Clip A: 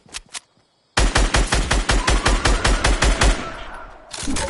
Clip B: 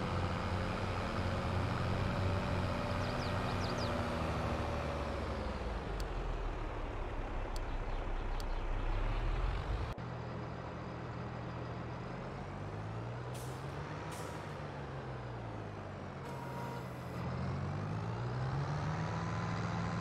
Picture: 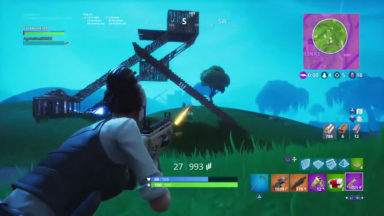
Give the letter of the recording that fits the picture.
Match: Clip A